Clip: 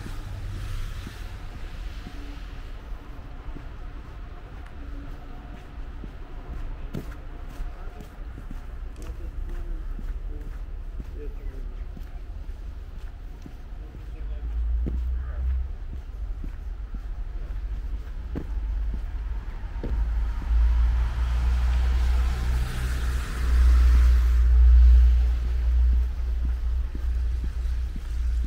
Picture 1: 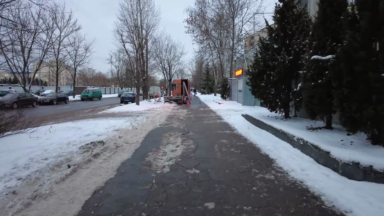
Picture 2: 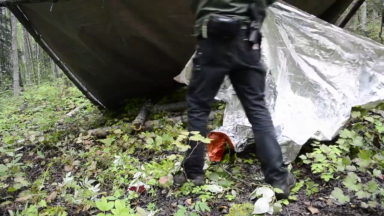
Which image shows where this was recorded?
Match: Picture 1